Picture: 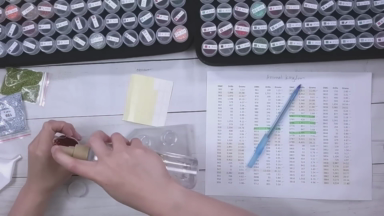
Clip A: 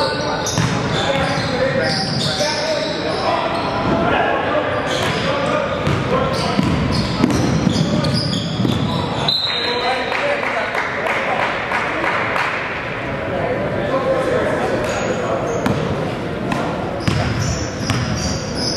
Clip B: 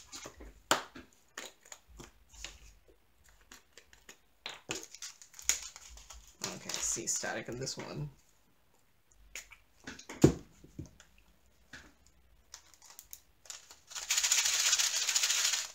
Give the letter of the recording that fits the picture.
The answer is B